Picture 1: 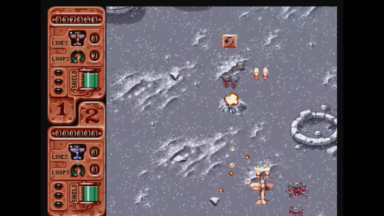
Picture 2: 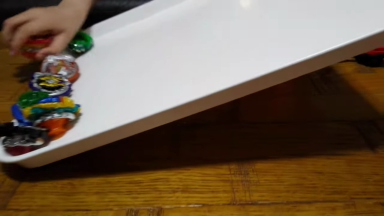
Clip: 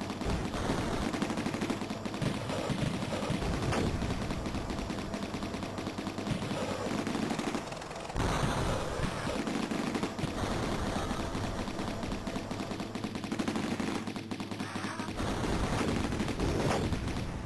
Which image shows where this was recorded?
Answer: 1